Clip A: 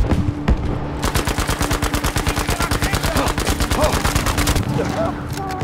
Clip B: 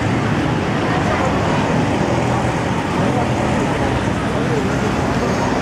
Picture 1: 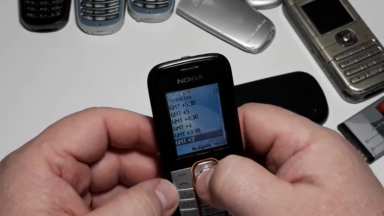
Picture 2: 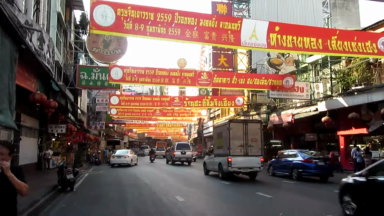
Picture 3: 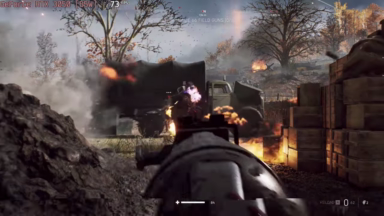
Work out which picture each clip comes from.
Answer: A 3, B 2